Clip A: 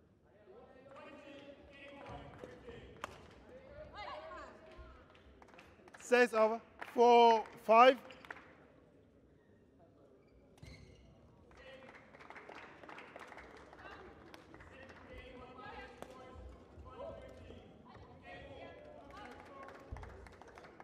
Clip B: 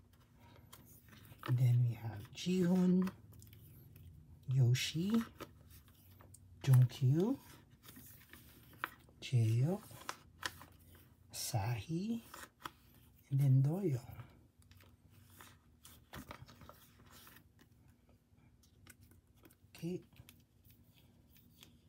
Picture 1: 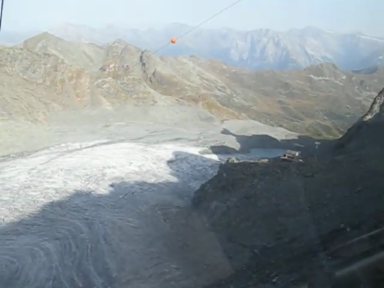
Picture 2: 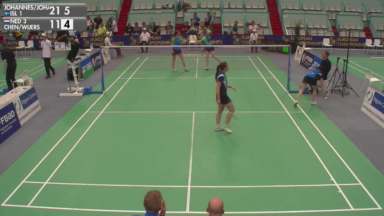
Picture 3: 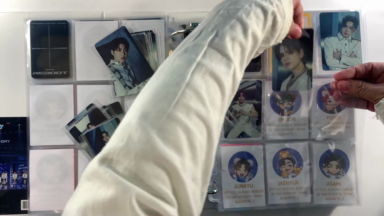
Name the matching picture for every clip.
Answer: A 2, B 3